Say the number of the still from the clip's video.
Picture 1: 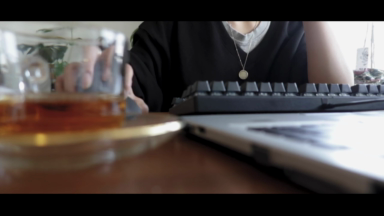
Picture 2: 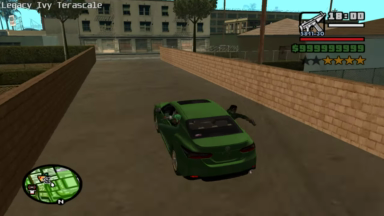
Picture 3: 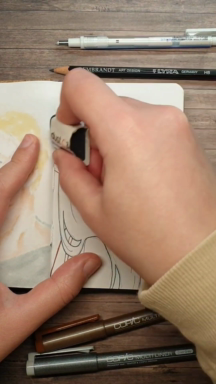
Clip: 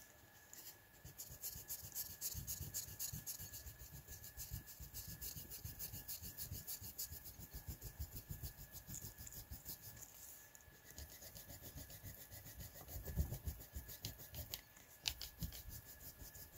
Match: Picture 3